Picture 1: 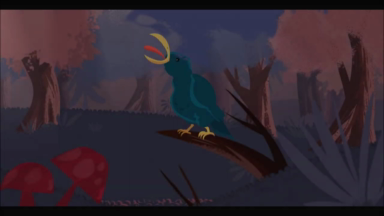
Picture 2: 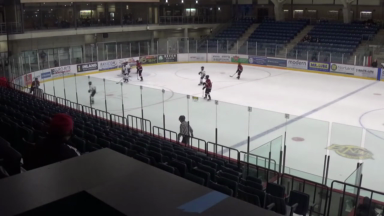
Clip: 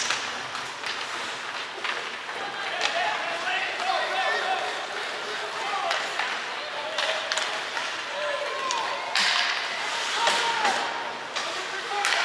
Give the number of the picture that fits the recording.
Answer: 2